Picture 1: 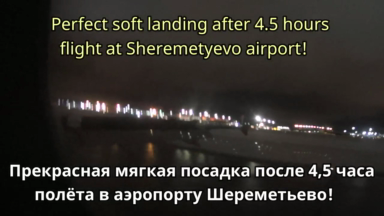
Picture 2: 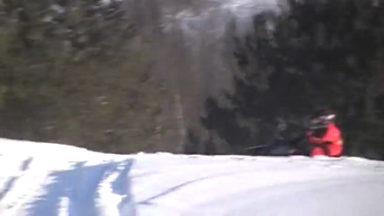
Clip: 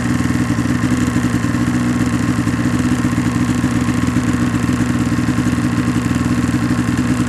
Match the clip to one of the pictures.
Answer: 2